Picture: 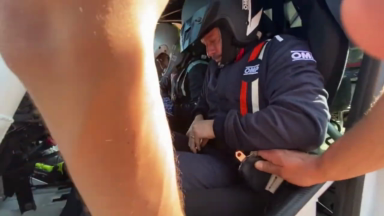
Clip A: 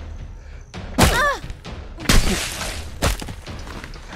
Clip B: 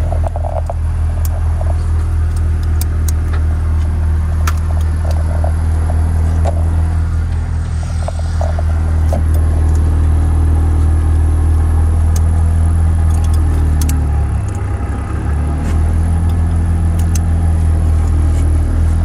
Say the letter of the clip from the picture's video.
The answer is B